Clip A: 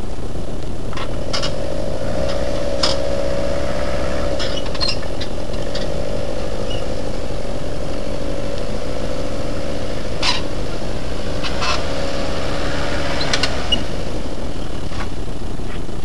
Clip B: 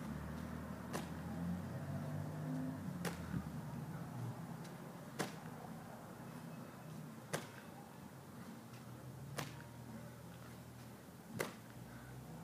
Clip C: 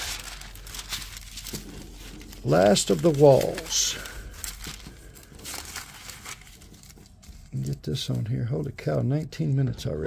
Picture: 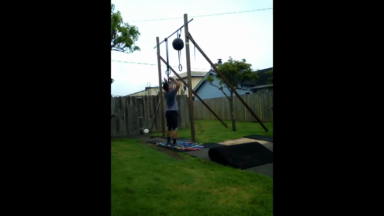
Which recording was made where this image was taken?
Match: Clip B